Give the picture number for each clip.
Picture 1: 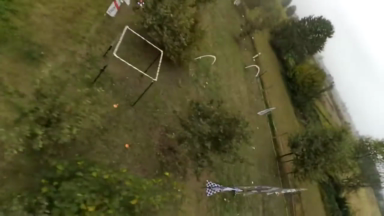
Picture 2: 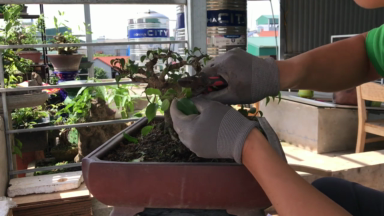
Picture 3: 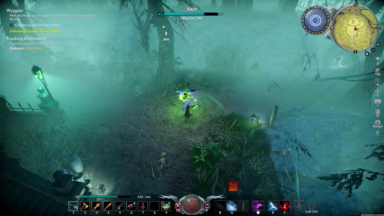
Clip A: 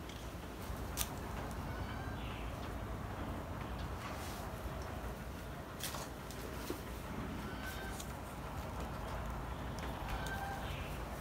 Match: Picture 2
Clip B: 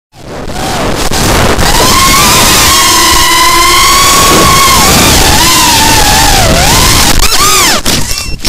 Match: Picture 1